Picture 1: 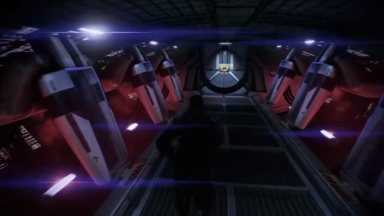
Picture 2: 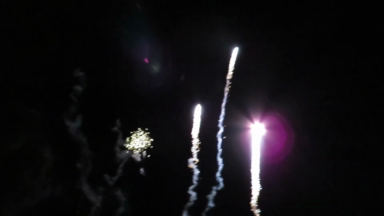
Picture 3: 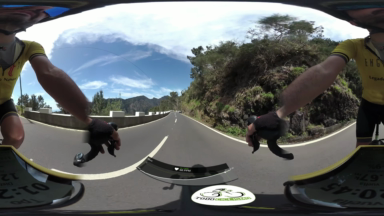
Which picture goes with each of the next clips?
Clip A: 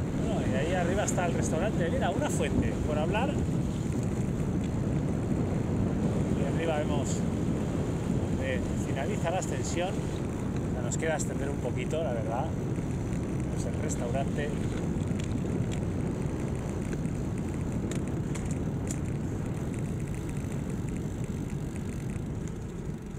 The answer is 3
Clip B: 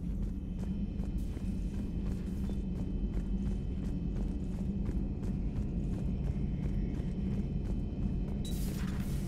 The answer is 1